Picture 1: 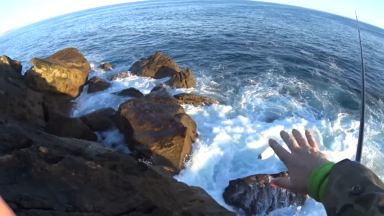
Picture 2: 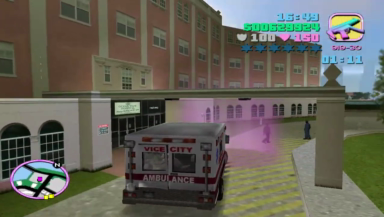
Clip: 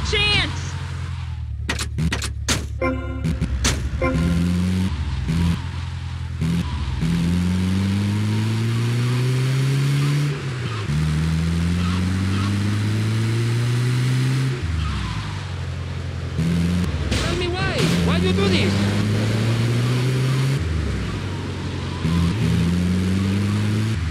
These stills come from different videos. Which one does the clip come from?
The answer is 2